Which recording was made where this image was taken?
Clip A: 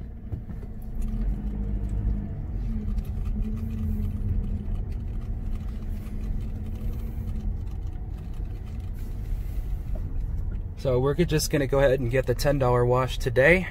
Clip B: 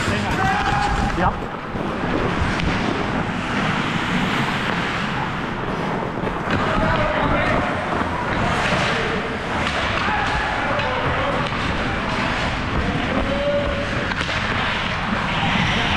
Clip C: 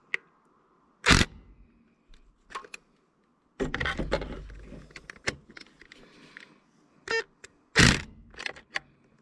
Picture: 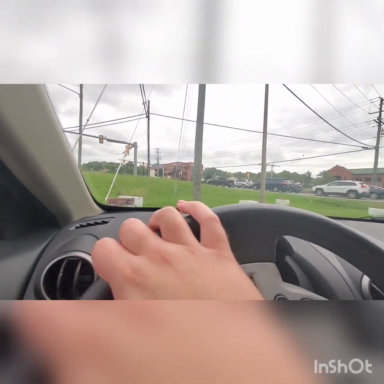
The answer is A